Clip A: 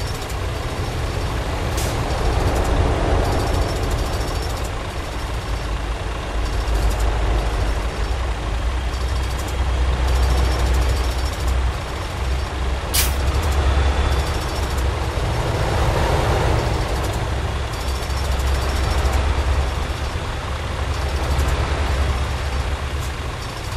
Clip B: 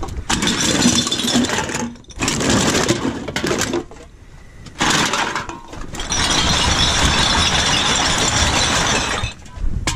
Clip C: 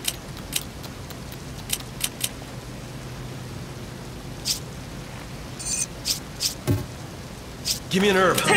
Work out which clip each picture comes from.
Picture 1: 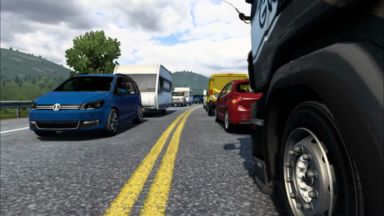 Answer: A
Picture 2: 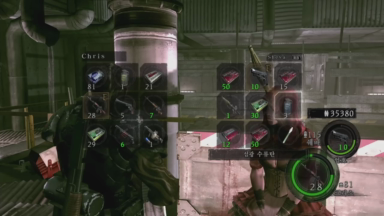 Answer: C